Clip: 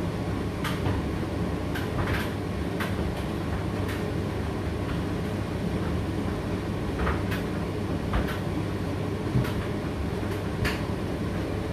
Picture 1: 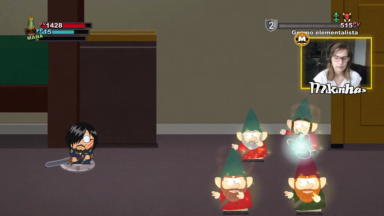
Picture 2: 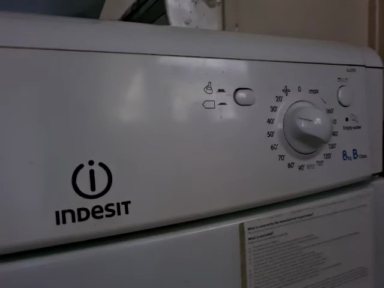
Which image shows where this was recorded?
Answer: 2